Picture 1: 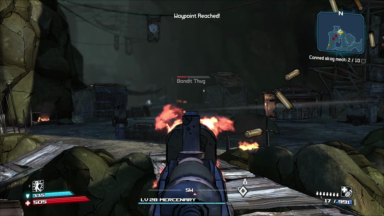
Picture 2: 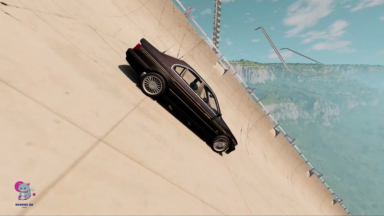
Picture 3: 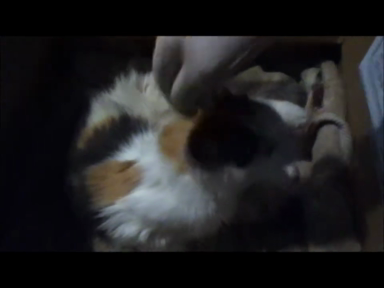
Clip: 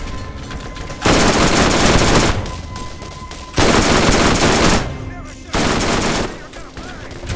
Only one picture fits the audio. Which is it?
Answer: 1